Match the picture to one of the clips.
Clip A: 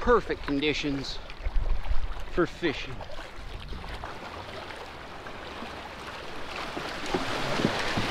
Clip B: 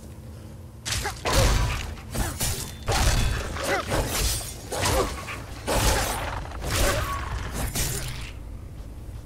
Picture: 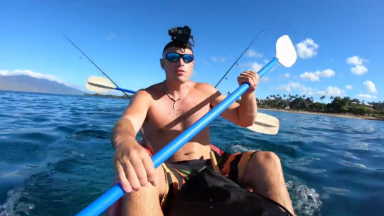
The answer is A